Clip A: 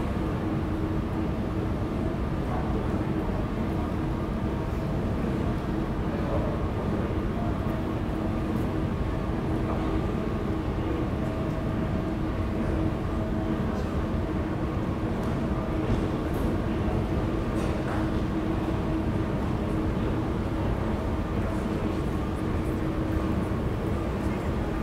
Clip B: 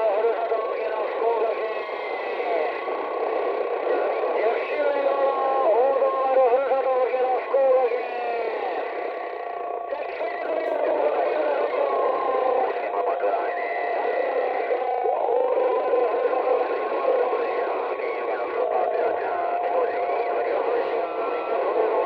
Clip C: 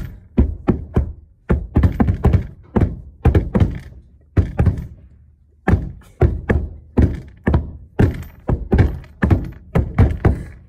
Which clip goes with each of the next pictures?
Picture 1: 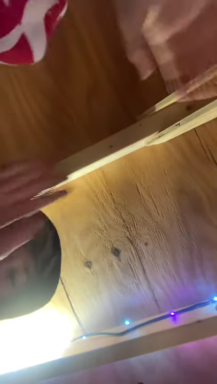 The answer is C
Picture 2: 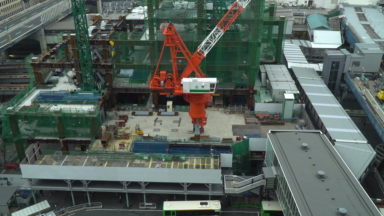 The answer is A